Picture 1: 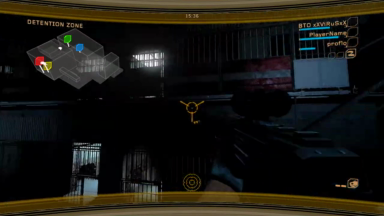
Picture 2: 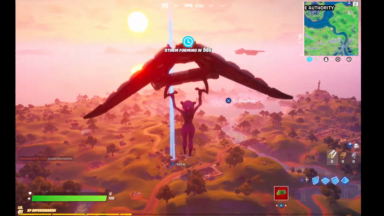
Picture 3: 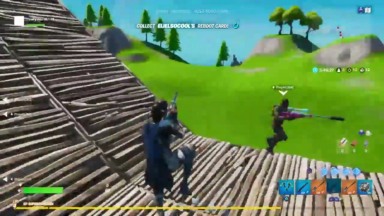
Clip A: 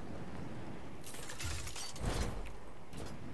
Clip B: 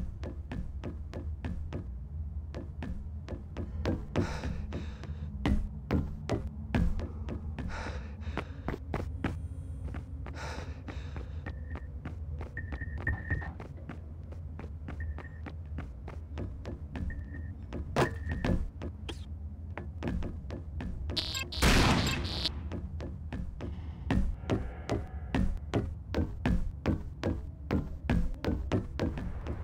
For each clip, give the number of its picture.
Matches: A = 2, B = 1